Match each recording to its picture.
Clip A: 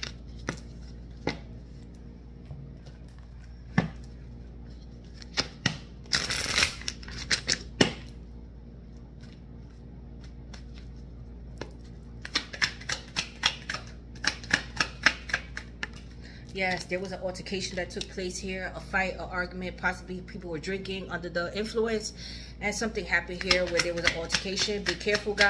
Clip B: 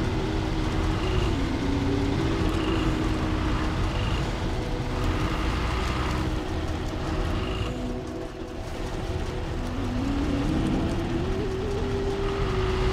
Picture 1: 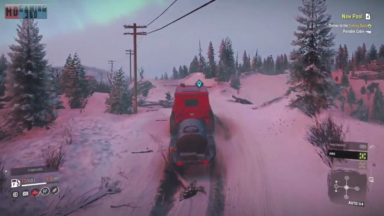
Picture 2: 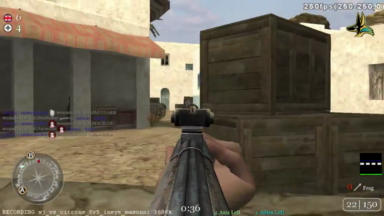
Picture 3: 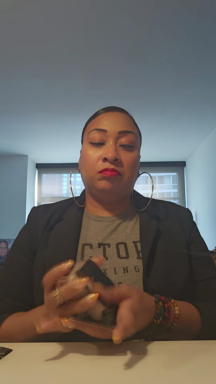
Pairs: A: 3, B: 1